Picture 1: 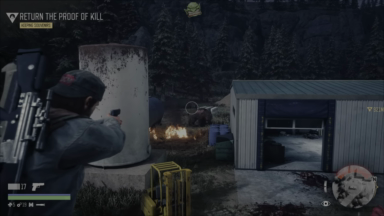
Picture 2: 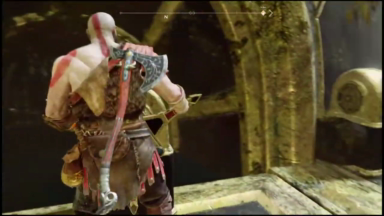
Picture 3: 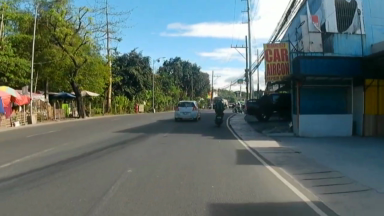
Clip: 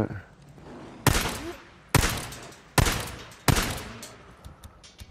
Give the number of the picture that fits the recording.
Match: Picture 1